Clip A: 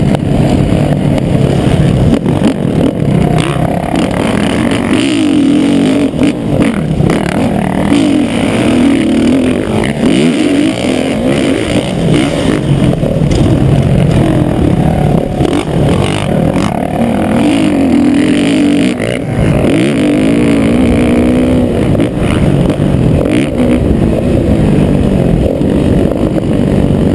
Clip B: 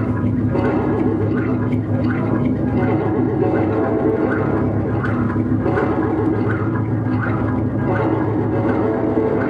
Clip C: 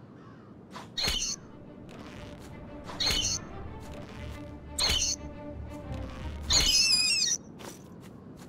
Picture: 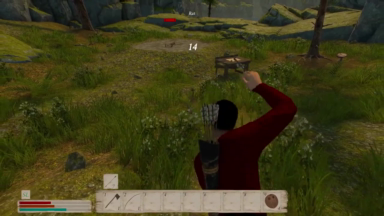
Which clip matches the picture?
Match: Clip C